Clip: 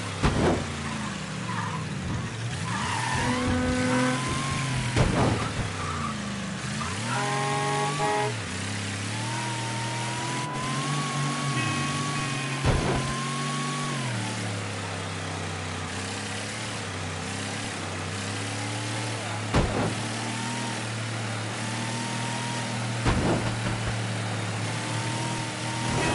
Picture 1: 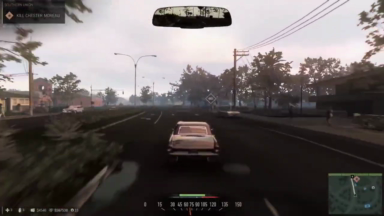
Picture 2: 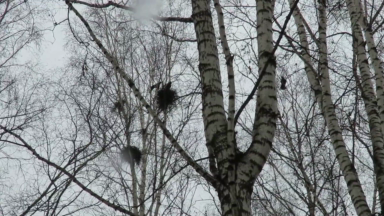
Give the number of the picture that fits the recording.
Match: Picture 1